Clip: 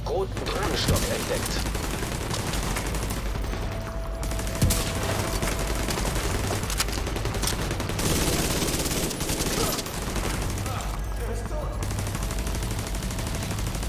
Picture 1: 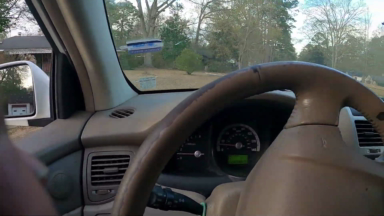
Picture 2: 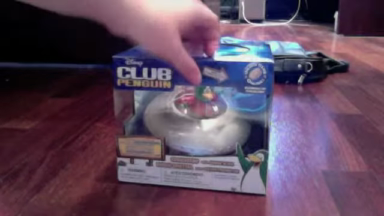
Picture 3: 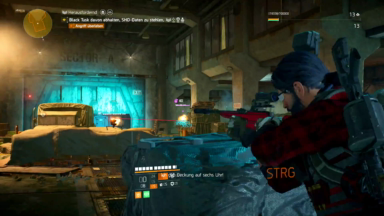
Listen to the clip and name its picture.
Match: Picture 3